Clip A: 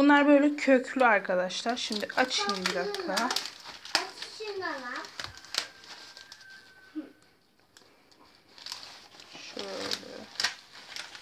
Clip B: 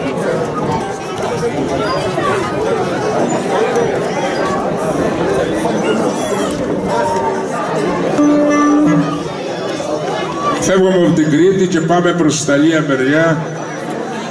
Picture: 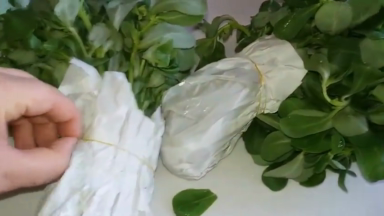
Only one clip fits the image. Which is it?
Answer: A